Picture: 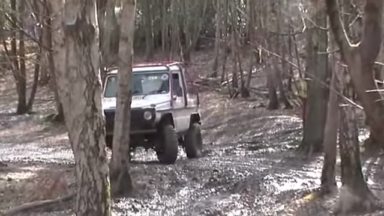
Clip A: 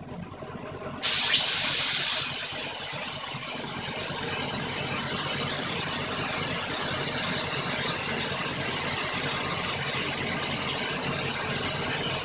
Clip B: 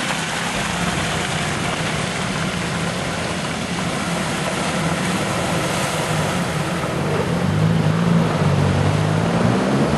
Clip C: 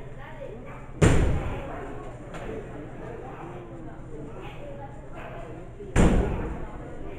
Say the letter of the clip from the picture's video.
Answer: B